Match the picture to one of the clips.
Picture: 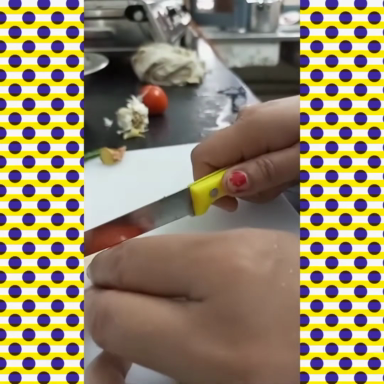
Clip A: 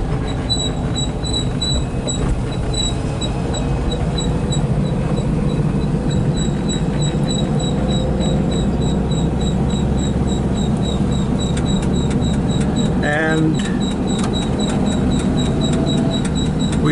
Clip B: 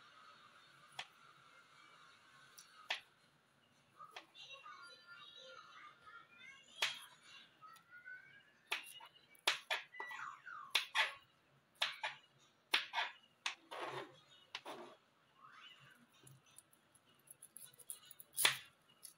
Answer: B